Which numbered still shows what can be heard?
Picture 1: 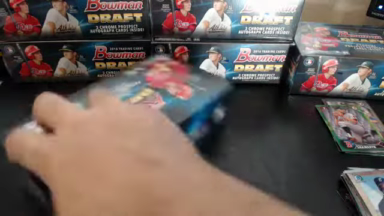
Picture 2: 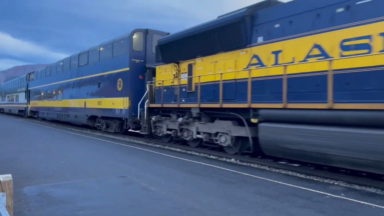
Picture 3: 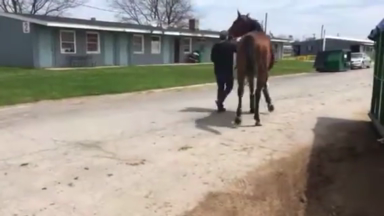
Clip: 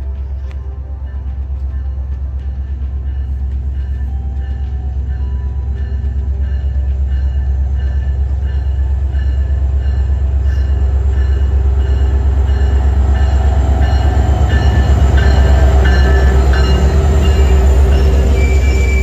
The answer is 2